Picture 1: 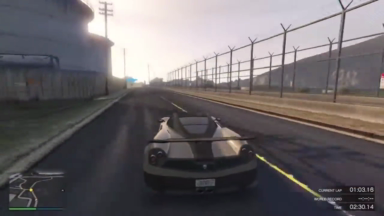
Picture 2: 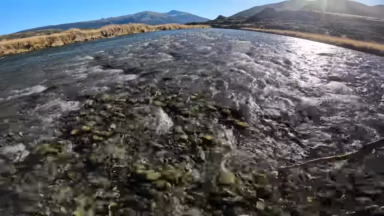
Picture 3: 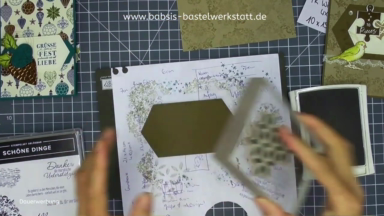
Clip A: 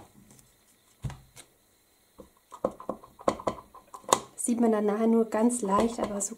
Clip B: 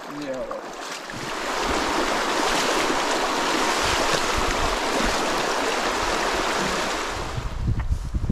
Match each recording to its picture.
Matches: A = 3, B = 2